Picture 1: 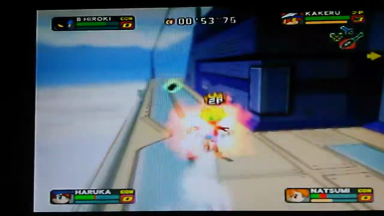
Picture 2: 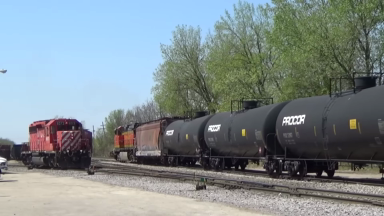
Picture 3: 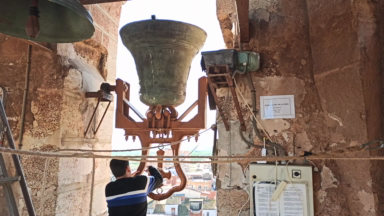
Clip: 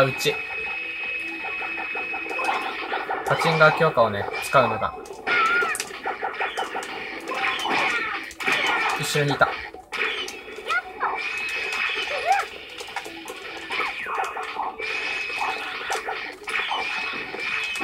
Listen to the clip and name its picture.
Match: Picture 1